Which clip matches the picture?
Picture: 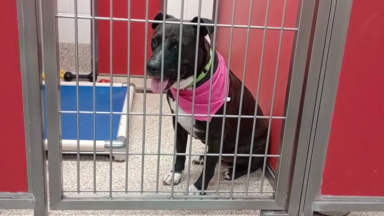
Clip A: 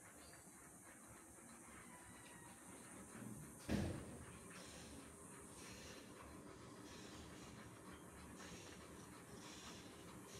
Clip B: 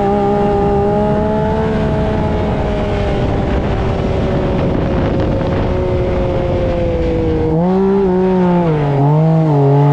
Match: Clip A